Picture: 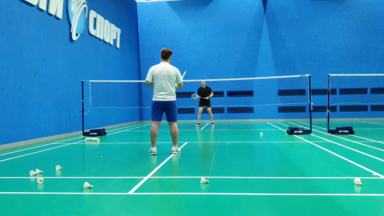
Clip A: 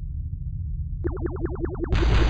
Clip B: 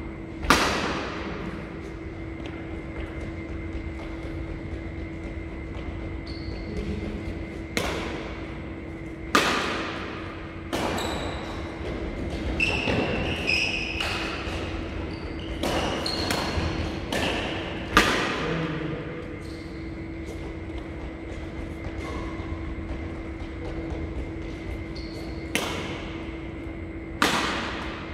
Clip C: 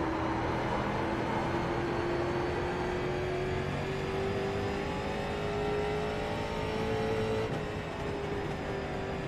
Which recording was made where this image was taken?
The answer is B